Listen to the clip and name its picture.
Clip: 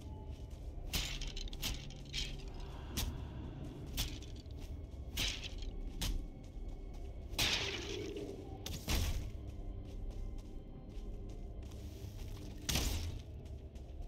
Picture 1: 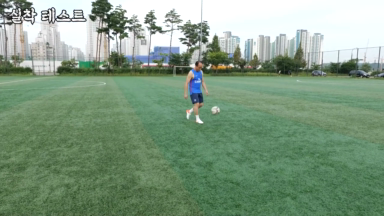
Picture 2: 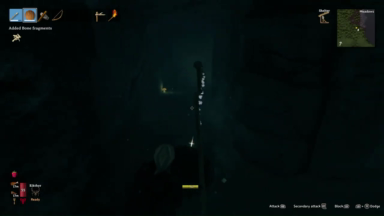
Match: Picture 2